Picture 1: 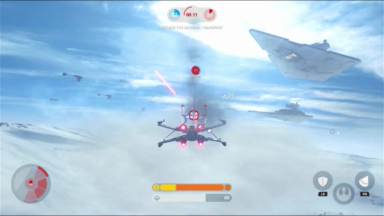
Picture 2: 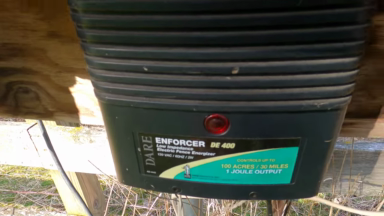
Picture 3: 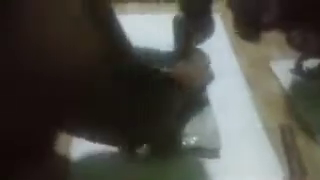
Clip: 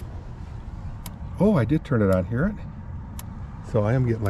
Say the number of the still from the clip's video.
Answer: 2